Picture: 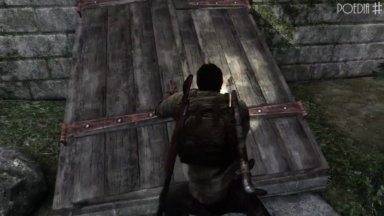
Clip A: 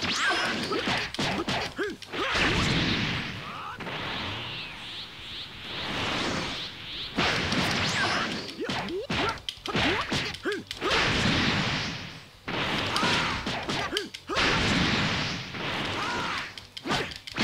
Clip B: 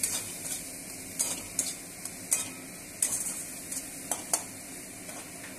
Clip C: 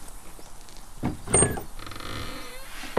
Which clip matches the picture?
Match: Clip C